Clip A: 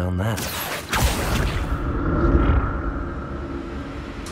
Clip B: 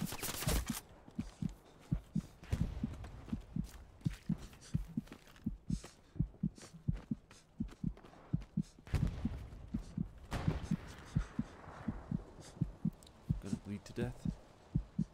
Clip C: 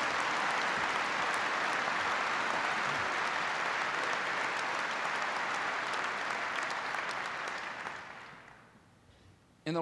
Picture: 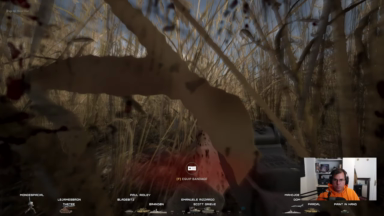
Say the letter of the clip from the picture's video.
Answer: B